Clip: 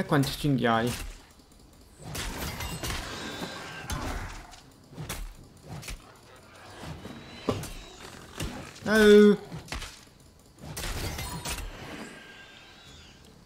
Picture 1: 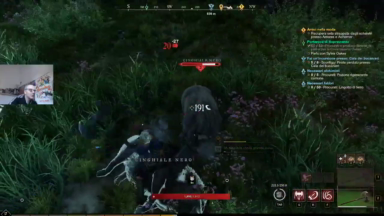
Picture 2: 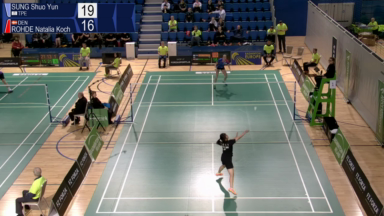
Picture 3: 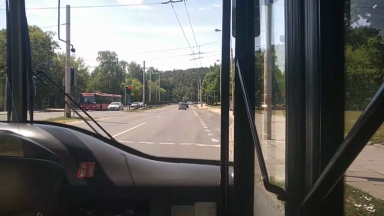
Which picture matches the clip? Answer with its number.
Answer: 1